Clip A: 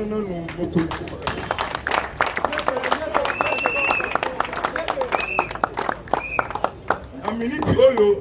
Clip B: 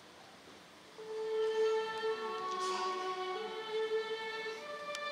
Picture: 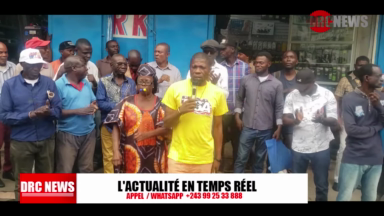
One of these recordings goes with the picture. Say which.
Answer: A